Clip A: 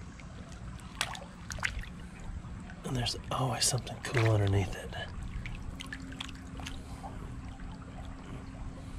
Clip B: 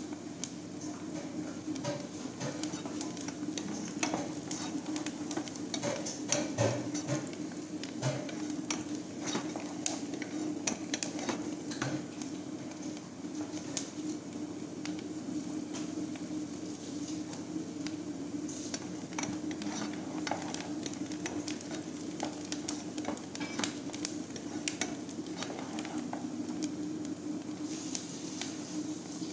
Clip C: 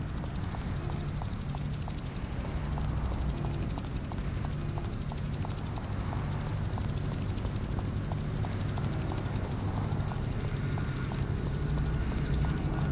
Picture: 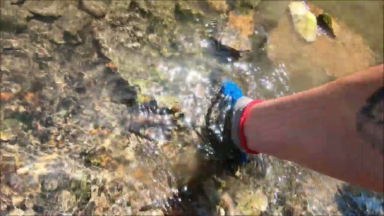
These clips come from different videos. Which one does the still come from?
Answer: A